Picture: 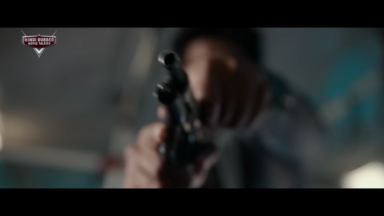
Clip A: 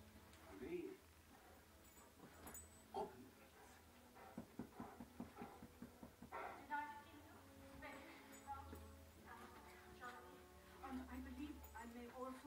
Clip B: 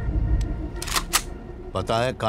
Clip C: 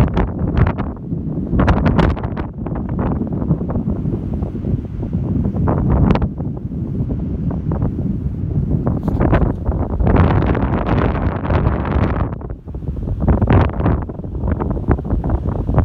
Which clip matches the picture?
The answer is B